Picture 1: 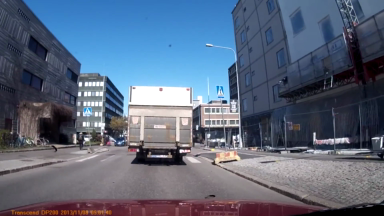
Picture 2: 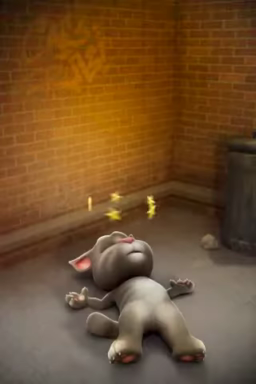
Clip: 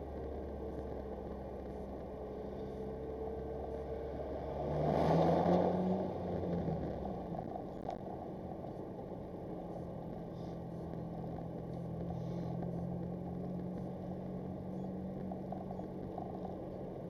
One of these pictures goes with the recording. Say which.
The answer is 1